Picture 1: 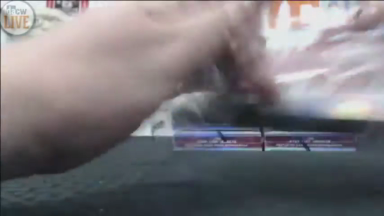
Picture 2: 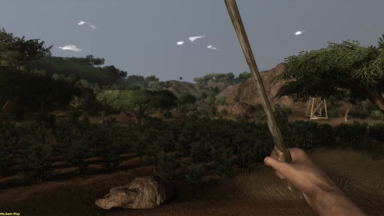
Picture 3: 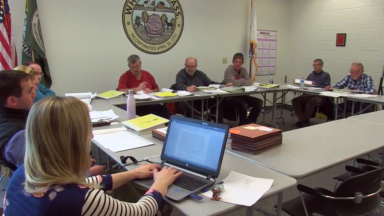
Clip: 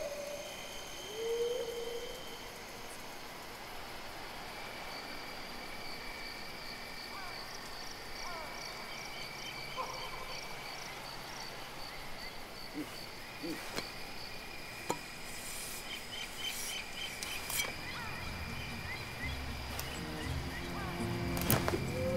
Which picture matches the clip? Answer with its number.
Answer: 2